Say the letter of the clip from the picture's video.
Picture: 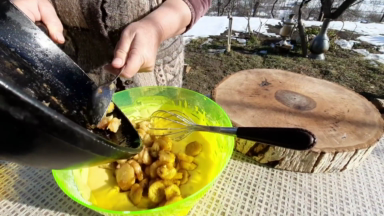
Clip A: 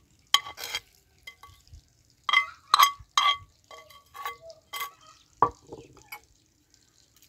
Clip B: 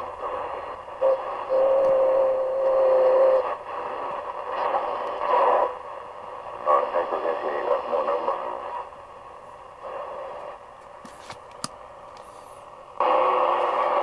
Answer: A